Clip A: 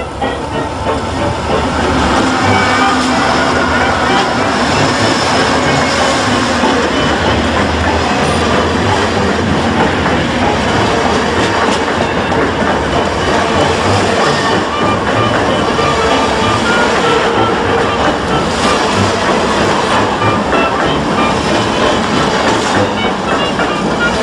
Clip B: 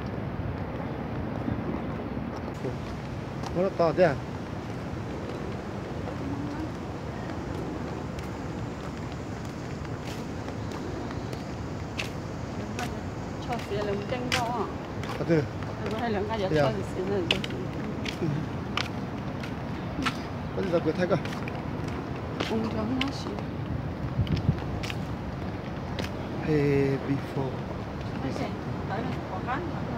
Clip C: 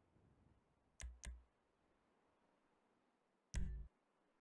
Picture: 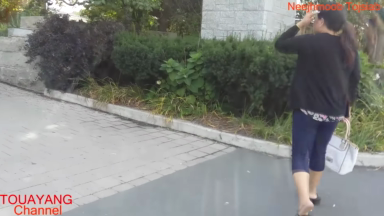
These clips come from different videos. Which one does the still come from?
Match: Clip B